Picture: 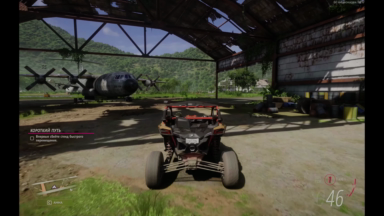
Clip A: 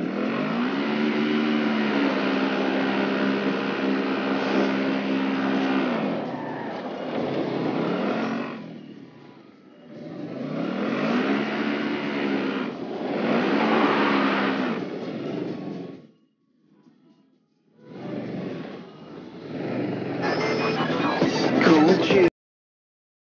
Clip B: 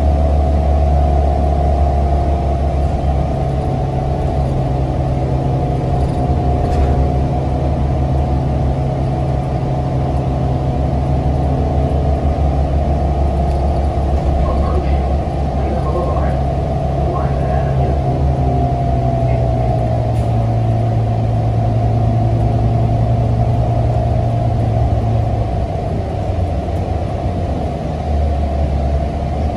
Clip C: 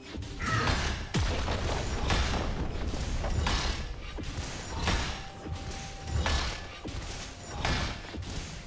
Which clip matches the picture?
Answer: A